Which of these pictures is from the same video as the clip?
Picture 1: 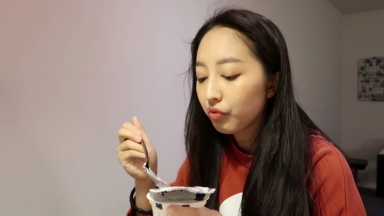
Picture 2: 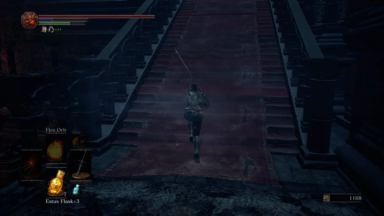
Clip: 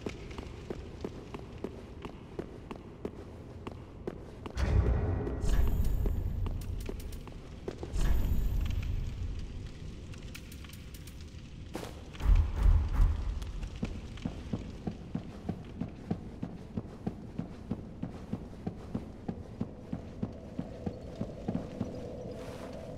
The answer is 2